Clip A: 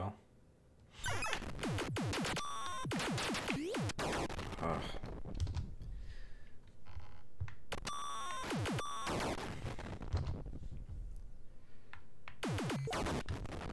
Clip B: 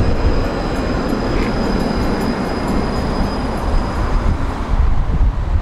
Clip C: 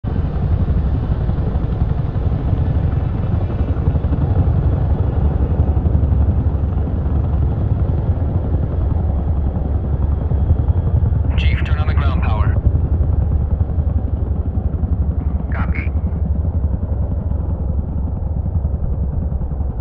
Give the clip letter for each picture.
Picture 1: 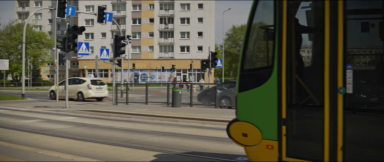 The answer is B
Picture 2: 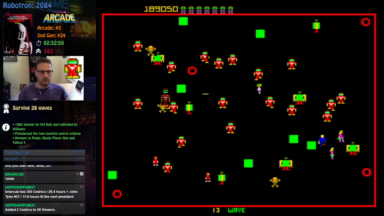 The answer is A